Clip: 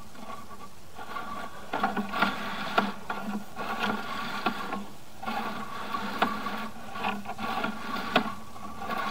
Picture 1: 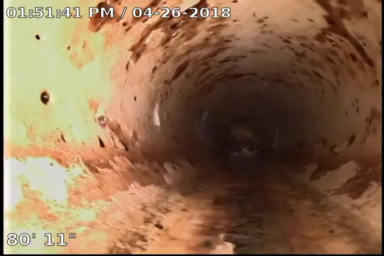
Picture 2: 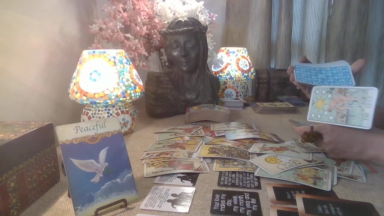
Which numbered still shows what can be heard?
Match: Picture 1